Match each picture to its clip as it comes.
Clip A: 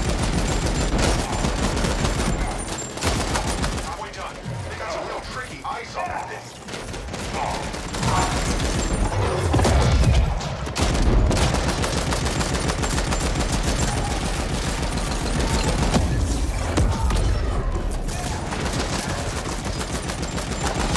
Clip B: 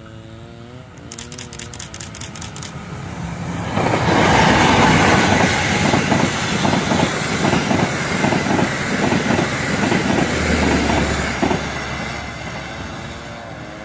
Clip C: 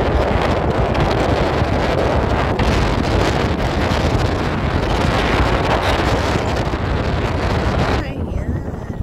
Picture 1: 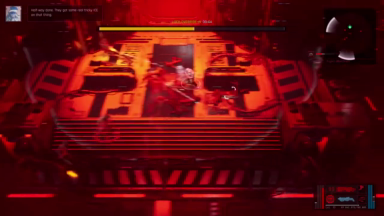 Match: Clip A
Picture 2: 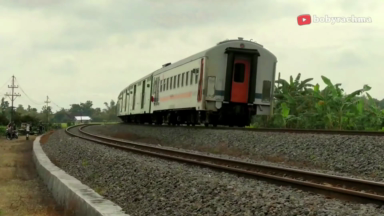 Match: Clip B